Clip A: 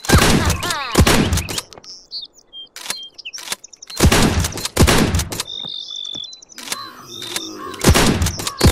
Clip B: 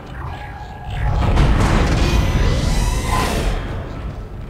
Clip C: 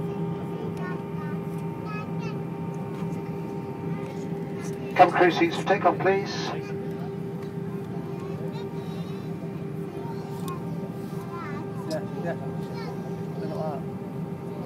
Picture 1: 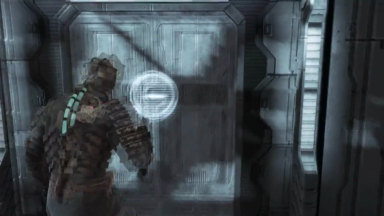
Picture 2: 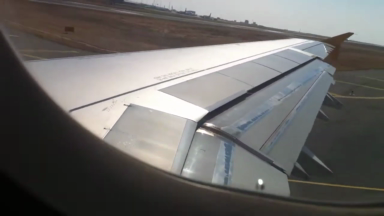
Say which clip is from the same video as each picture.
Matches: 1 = B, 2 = C